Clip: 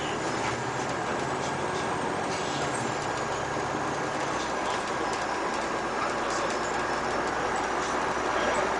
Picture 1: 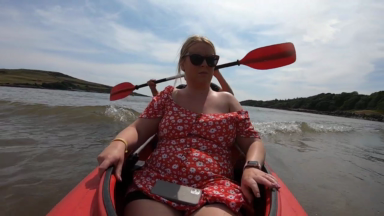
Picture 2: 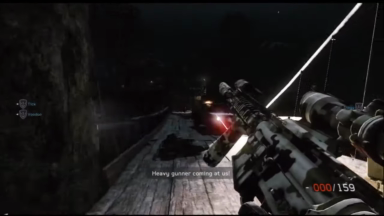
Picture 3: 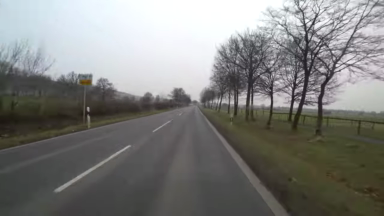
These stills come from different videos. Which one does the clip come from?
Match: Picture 3